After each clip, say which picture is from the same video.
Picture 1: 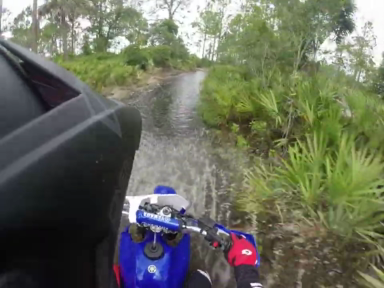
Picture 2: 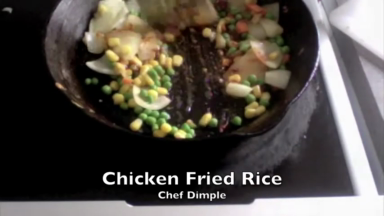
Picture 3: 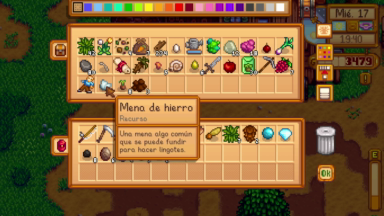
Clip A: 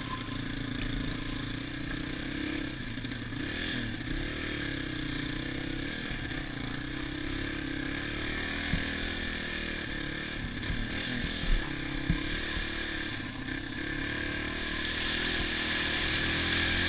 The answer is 1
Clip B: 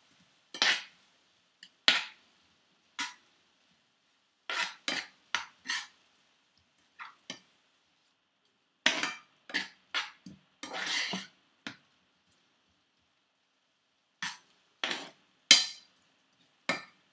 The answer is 2